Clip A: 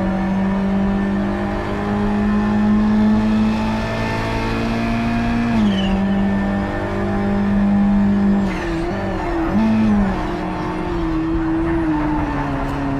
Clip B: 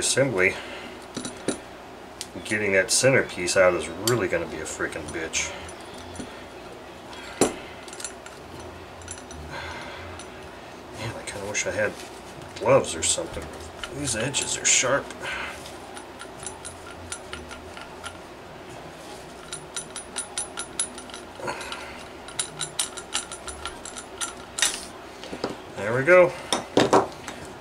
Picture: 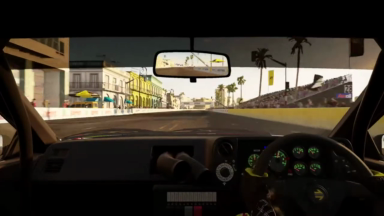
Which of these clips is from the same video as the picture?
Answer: A